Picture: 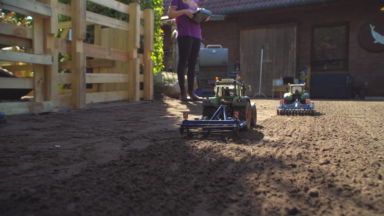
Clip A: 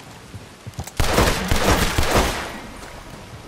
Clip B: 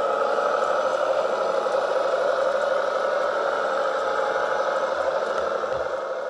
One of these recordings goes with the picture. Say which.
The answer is B